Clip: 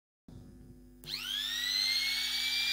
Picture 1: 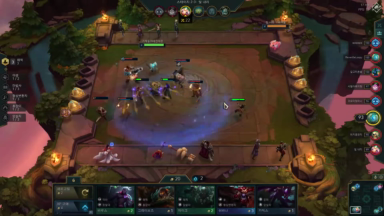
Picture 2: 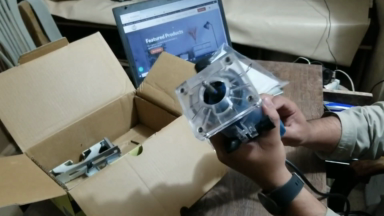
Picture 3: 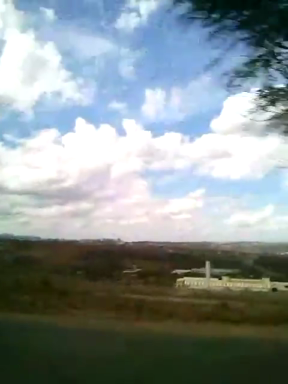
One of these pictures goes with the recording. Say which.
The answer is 2